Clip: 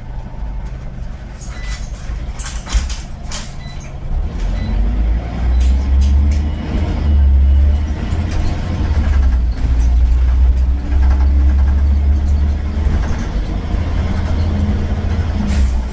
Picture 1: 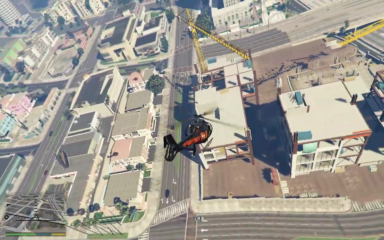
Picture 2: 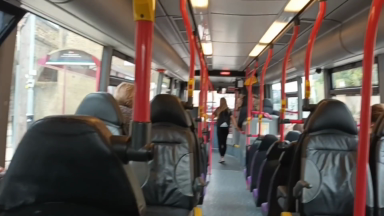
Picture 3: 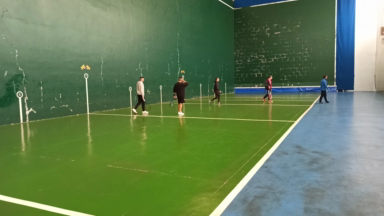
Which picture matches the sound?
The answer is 2